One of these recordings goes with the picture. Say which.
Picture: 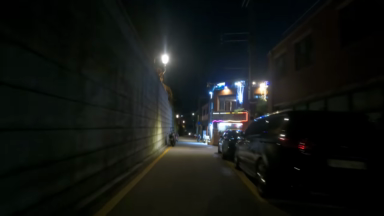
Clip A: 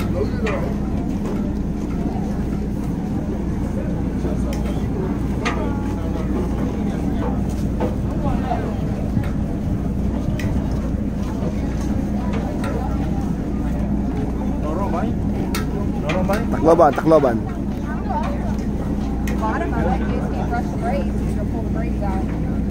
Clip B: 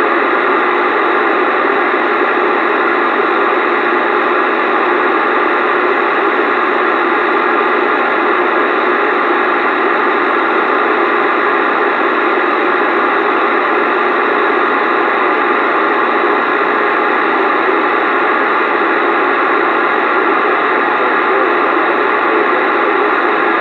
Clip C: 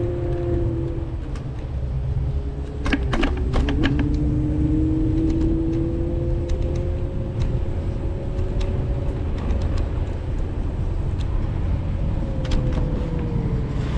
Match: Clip C